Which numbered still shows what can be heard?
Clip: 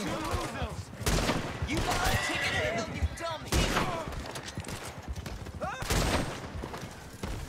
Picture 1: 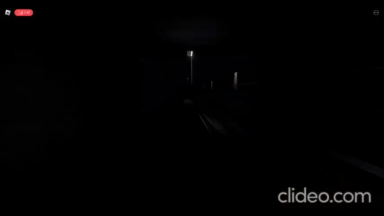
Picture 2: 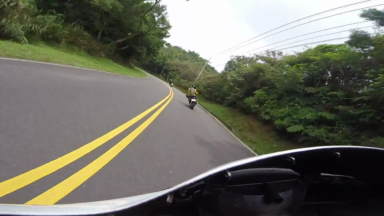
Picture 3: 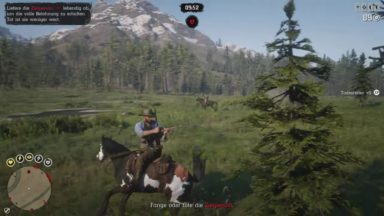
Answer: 3